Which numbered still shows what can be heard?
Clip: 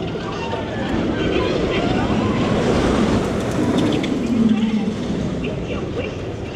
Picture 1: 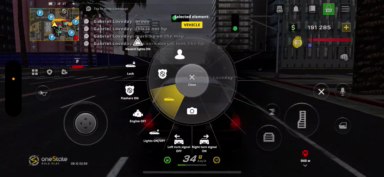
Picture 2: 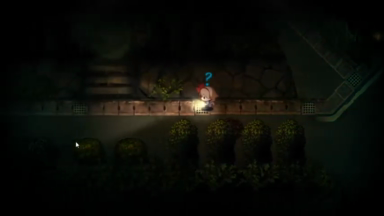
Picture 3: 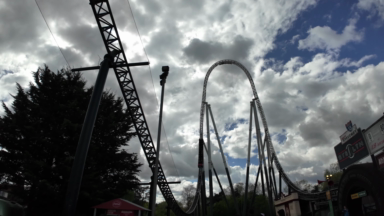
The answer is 3